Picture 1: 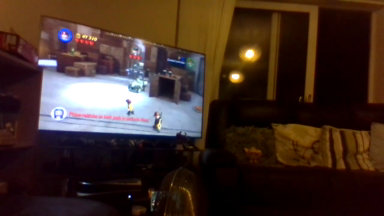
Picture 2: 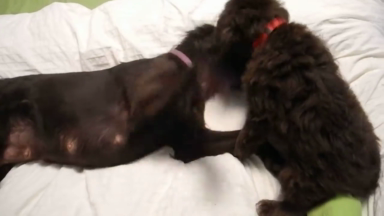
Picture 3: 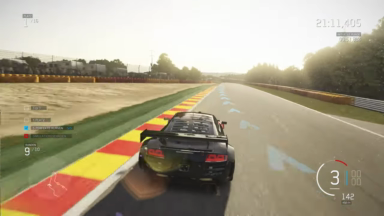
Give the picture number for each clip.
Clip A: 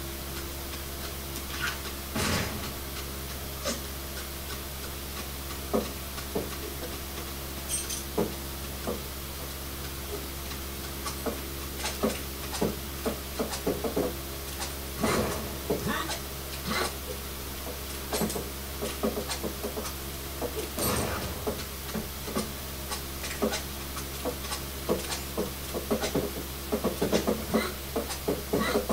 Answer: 1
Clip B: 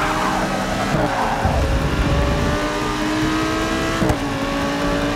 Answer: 3